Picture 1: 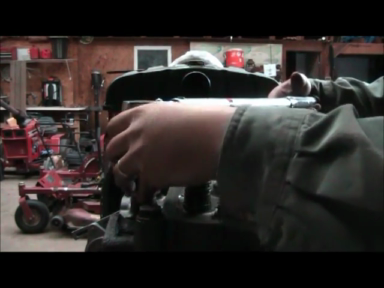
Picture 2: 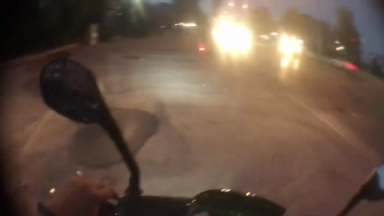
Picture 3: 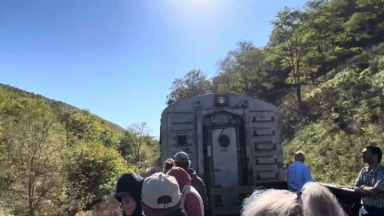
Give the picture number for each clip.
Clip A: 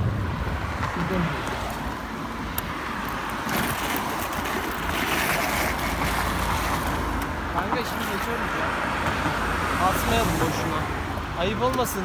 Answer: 2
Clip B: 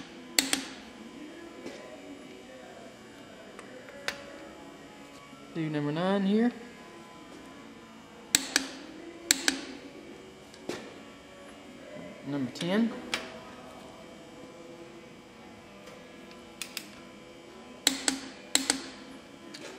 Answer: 1